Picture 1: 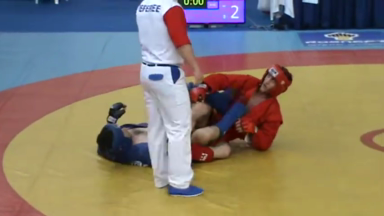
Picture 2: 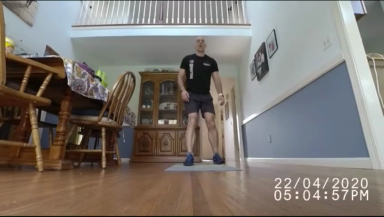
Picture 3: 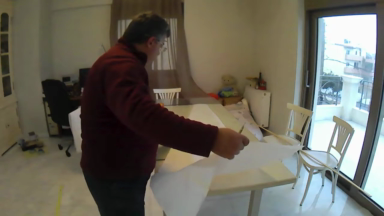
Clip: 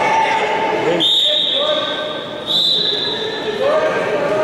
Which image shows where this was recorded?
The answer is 1